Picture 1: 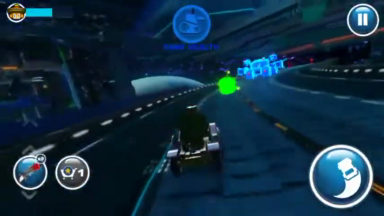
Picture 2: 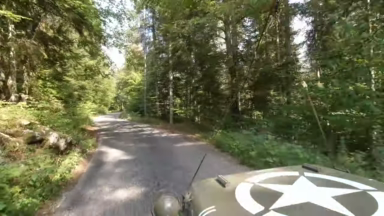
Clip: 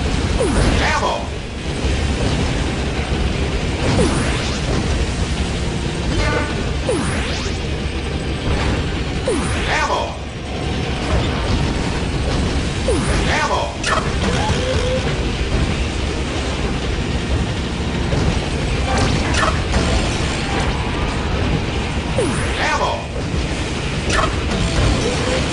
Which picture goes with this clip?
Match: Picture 1